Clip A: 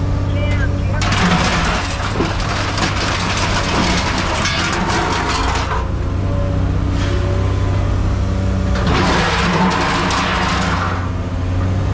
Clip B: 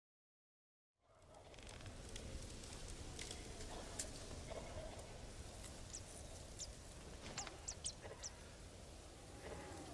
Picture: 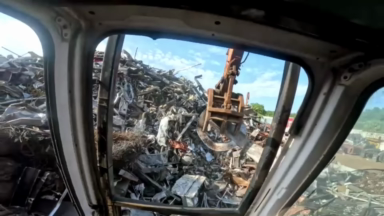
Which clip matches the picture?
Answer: A